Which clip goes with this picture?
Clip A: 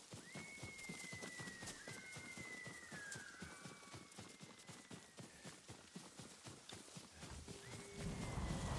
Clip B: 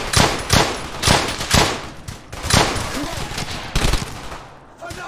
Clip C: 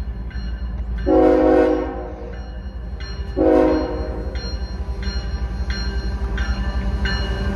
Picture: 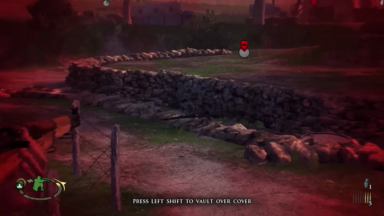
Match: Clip B